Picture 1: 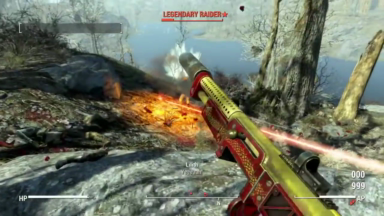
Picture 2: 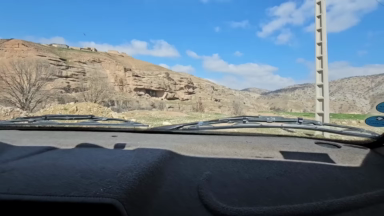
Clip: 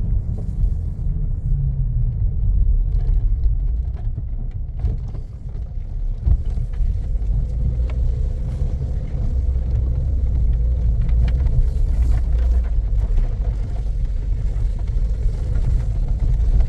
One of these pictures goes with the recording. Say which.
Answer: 2